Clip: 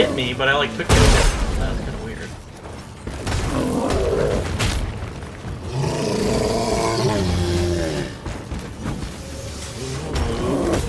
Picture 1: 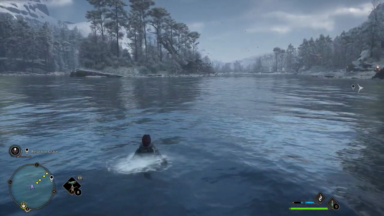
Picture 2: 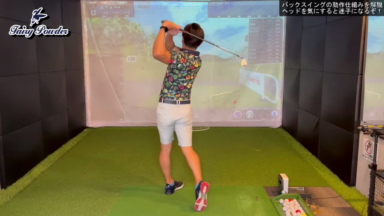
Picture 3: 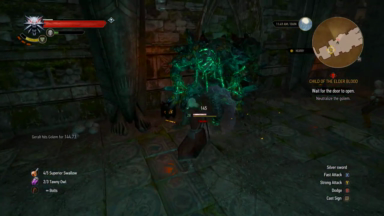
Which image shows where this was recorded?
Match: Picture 3